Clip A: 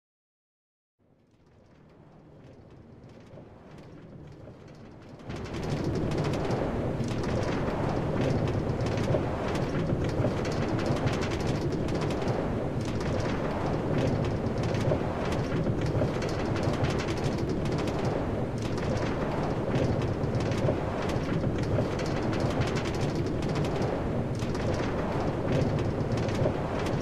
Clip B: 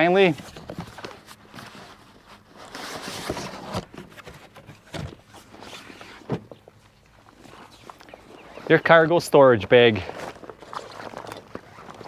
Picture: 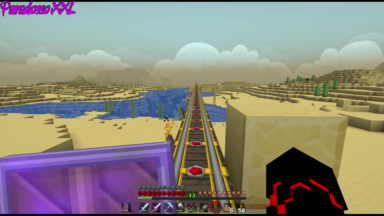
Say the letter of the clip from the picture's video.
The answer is A